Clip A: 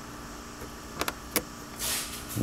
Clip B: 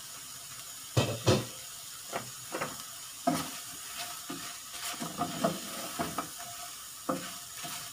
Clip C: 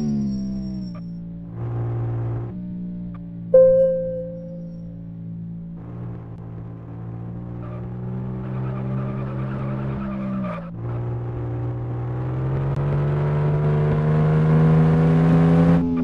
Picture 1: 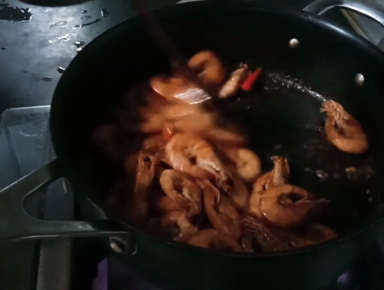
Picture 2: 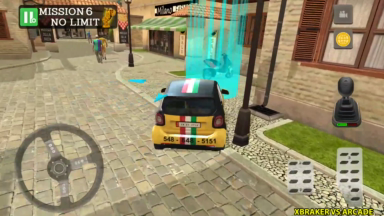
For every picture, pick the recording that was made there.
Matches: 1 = B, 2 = C